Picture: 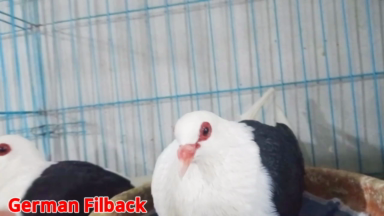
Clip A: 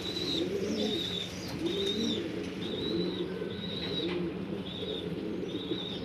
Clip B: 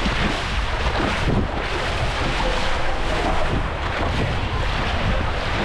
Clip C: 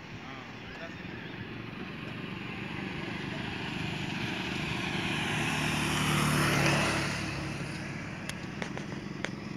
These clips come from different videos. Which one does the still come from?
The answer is A